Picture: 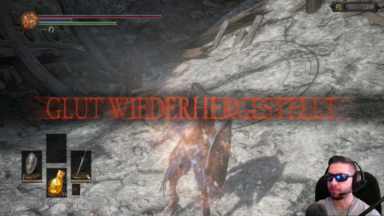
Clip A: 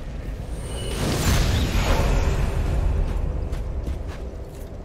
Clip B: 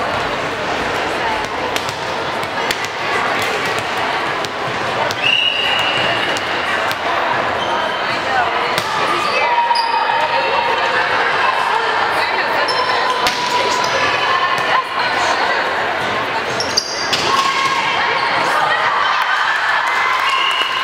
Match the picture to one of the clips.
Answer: A